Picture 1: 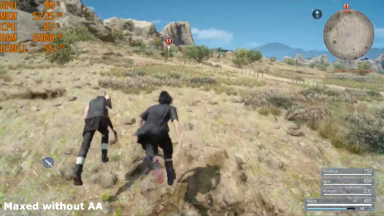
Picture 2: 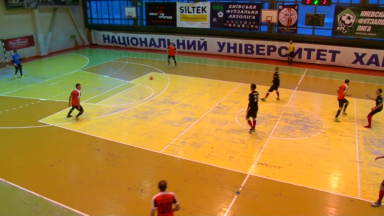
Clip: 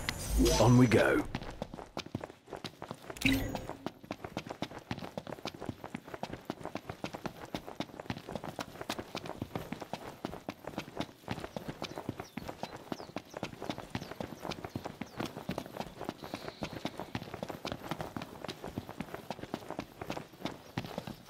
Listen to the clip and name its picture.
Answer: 1